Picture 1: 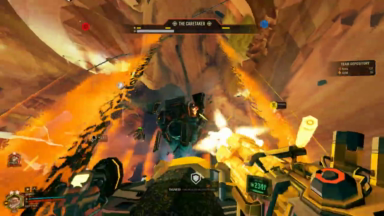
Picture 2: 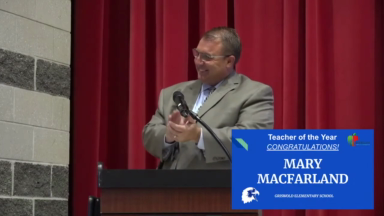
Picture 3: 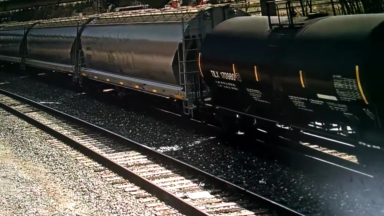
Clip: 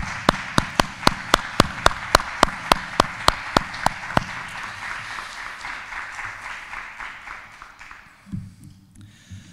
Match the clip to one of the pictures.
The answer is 2